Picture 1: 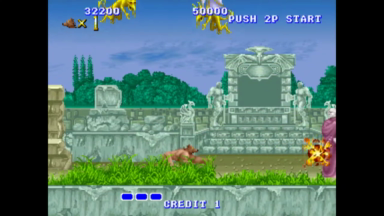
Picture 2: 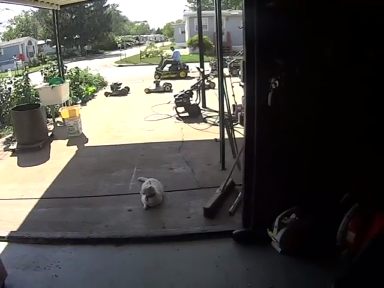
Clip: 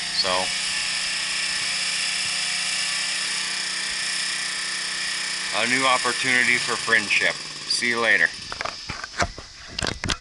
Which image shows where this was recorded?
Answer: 2